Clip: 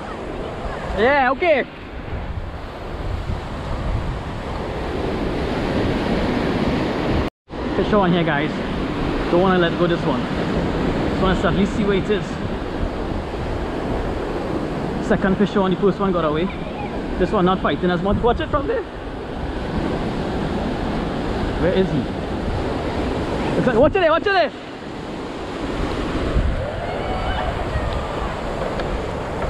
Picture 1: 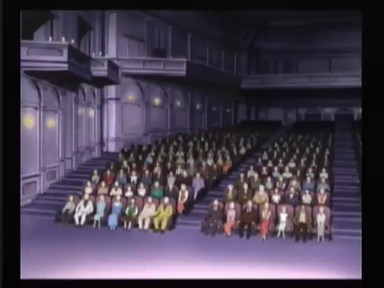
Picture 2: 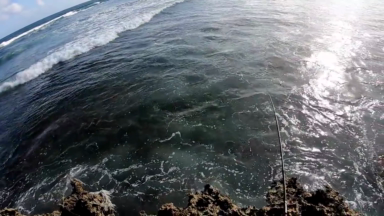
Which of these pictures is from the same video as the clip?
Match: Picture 2